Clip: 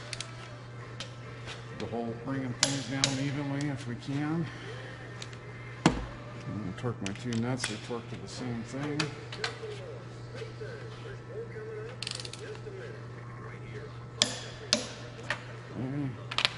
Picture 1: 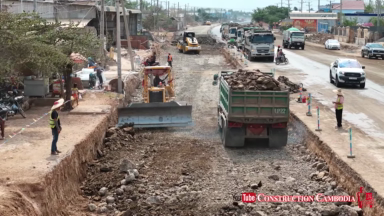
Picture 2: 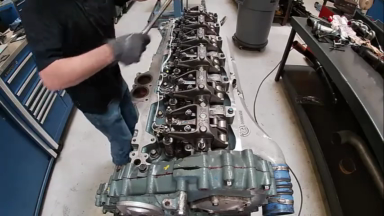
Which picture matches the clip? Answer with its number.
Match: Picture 2